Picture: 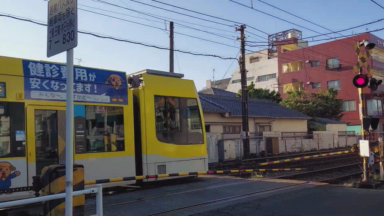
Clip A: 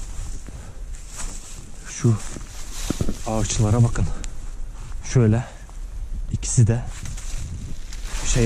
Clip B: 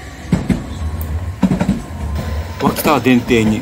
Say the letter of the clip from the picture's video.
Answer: B